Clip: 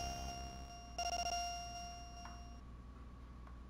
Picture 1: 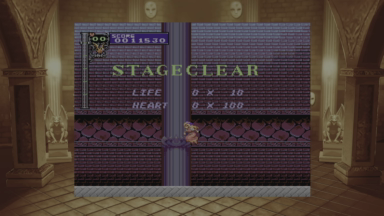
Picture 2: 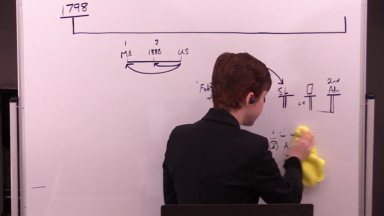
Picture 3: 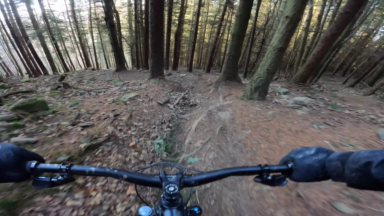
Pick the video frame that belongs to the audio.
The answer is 1